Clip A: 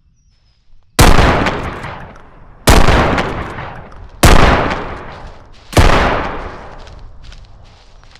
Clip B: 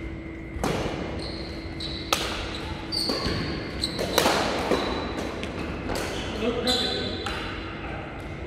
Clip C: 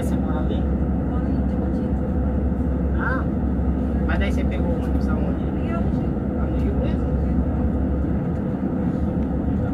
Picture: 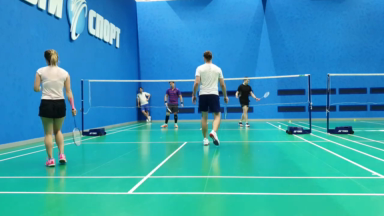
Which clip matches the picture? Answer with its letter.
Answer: B